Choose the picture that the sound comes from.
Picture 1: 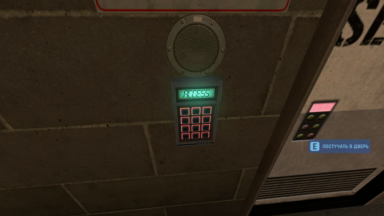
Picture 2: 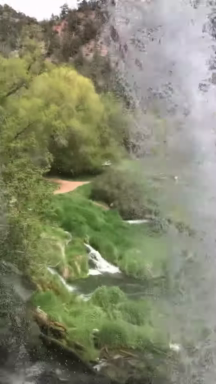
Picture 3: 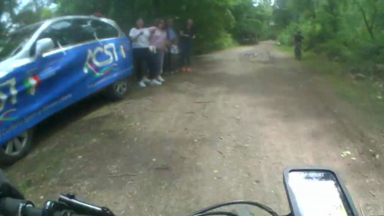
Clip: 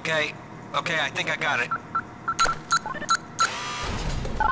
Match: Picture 1